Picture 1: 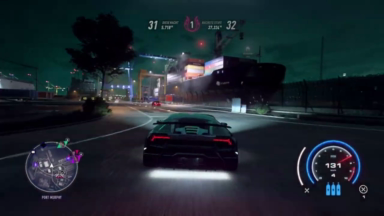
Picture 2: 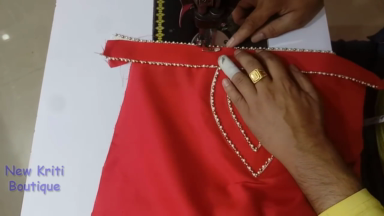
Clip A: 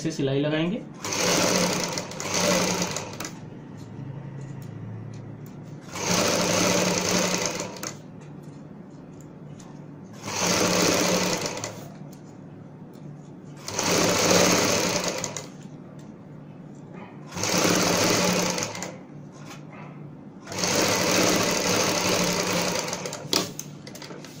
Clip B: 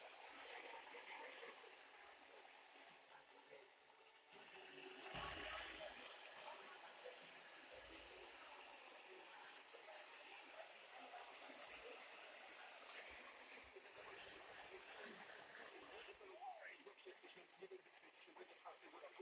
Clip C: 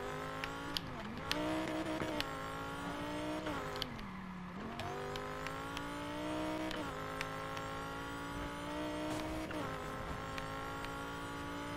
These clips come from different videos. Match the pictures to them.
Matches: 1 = C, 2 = A